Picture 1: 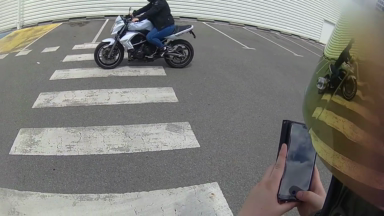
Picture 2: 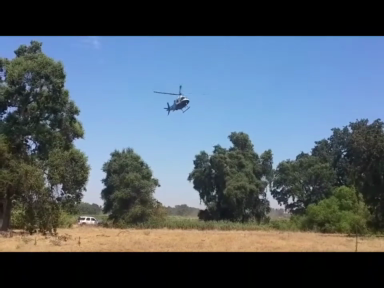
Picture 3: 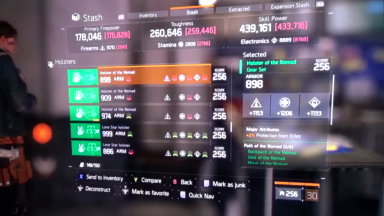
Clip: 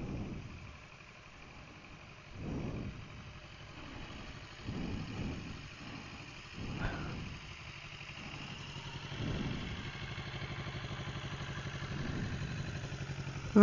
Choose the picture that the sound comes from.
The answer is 1